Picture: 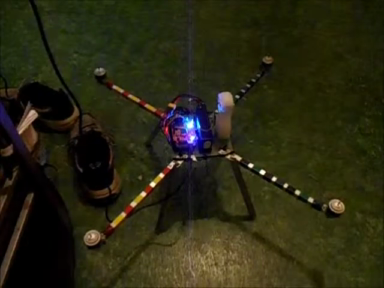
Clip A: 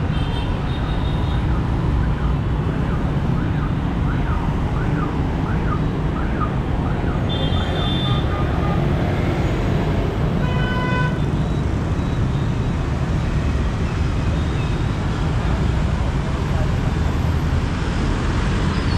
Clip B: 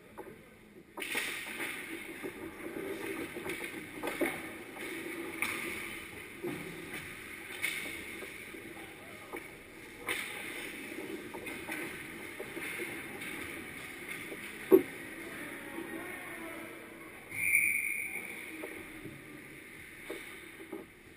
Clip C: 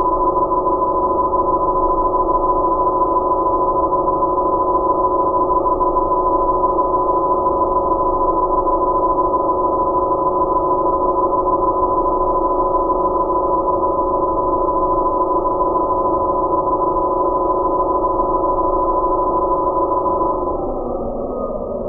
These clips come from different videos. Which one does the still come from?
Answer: C